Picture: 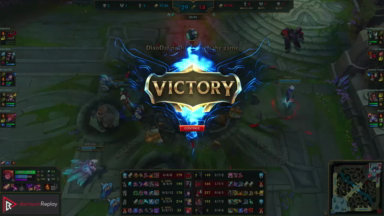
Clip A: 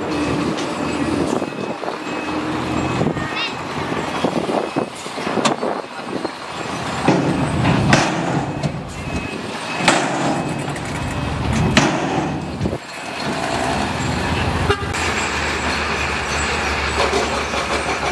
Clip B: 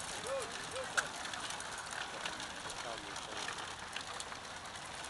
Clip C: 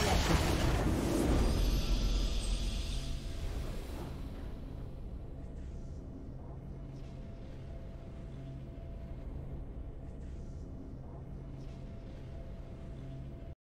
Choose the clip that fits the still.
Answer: C